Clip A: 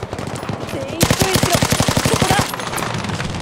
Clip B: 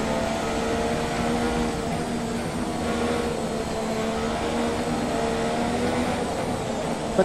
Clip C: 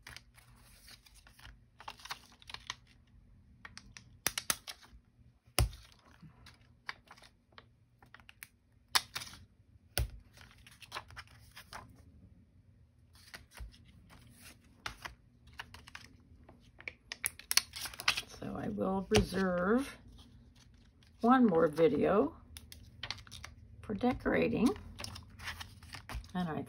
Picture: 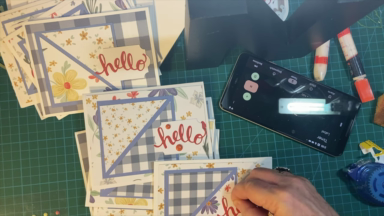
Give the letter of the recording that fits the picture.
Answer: C